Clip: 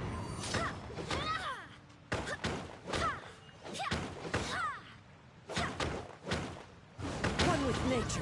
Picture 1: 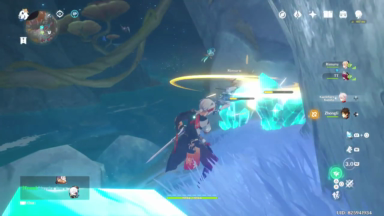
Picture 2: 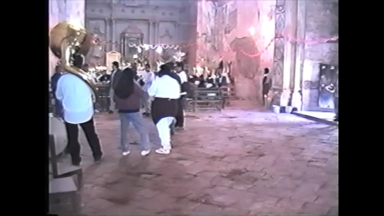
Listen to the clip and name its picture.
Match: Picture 1